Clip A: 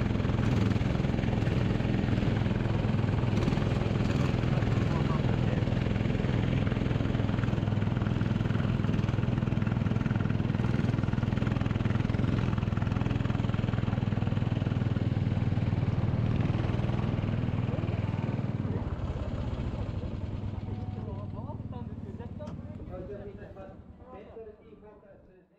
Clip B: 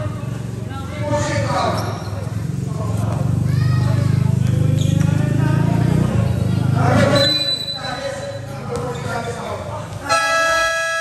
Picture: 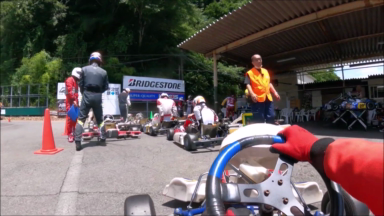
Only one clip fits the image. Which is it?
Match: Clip A